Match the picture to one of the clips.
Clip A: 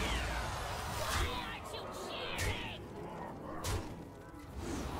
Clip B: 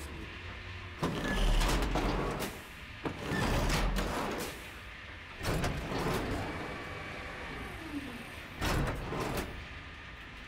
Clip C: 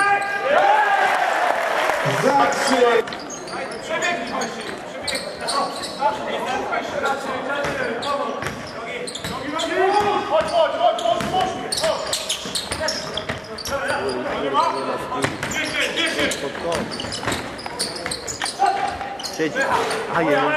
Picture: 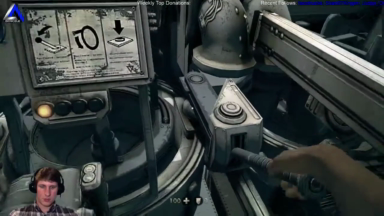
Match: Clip B